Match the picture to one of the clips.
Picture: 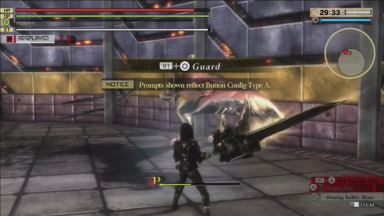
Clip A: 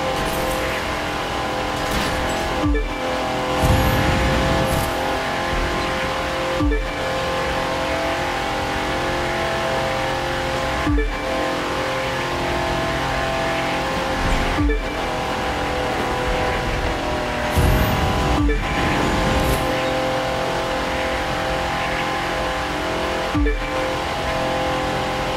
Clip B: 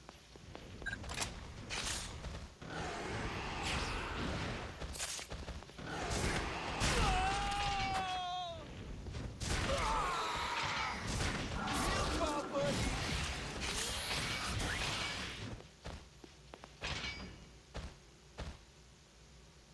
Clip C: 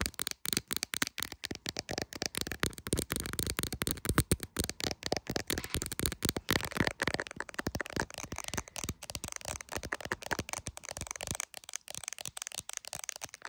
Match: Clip B